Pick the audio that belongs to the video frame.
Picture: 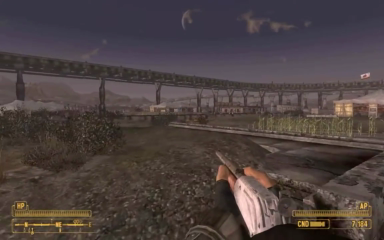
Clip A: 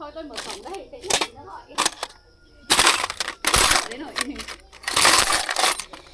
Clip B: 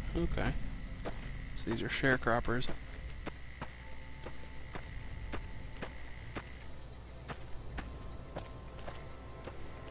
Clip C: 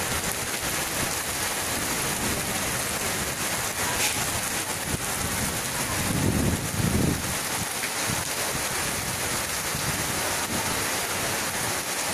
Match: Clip B